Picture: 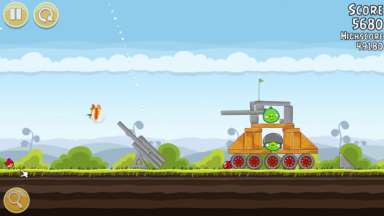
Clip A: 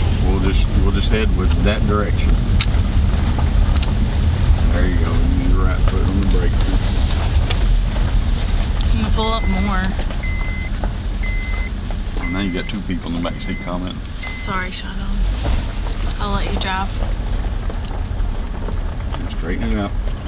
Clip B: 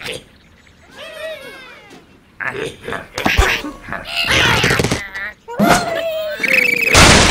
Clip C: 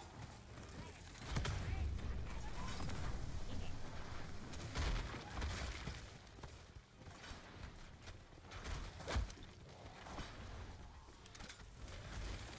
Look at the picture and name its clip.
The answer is B